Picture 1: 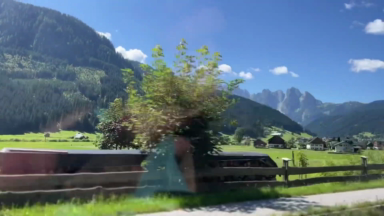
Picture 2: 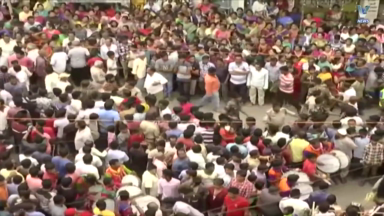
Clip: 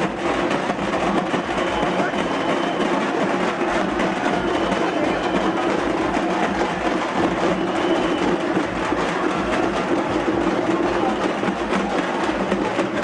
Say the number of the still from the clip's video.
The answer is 2